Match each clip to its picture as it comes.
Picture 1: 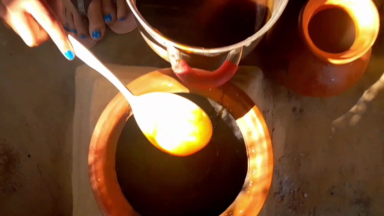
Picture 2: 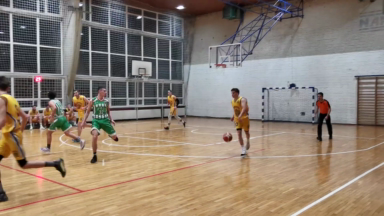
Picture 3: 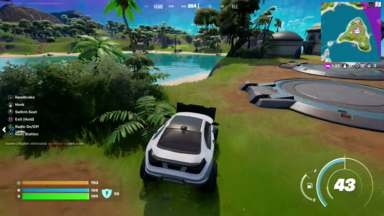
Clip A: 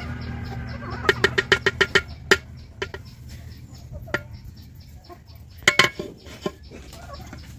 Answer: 1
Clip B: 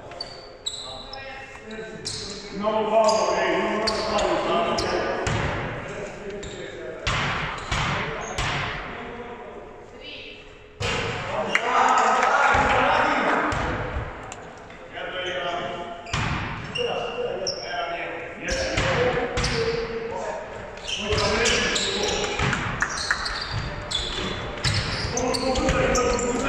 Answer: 2